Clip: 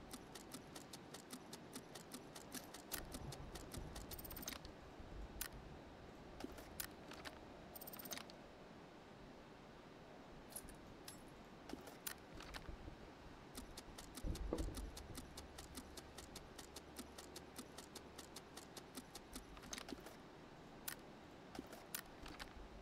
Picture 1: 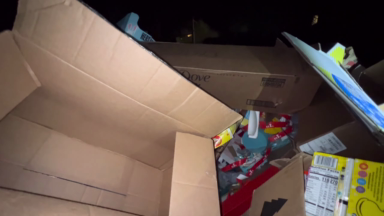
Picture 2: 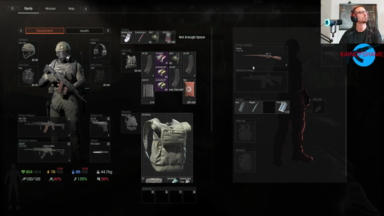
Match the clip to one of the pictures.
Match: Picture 2